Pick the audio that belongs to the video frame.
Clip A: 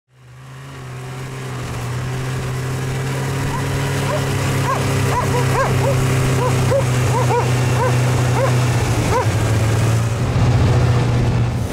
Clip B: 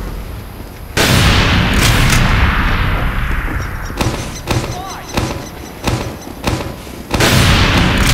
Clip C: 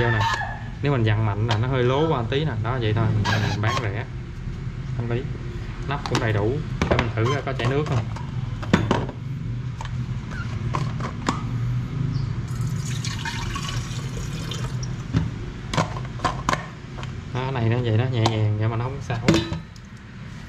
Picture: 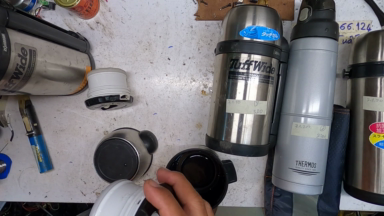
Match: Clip C